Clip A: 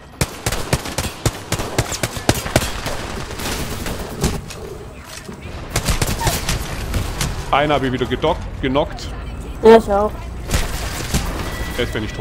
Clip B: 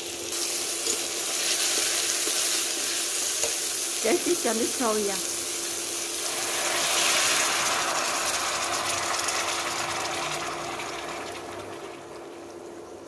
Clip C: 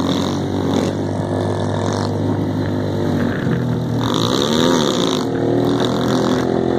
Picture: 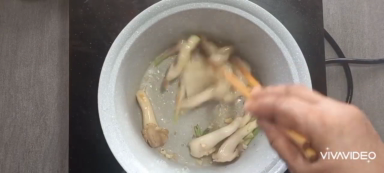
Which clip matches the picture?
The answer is B